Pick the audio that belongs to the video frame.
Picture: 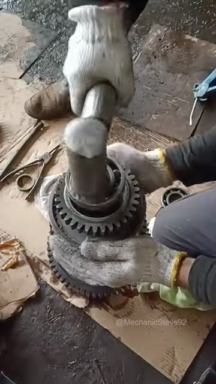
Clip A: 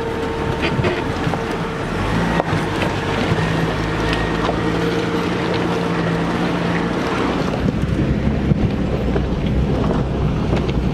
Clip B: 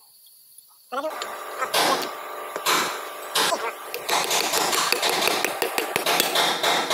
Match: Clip B